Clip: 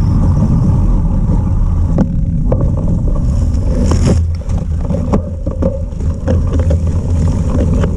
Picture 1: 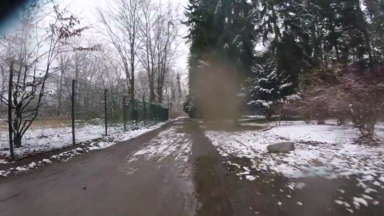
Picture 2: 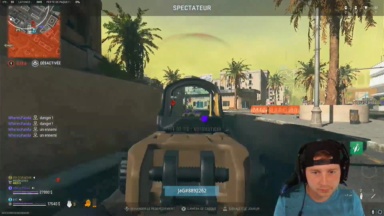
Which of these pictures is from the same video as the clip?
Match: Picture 1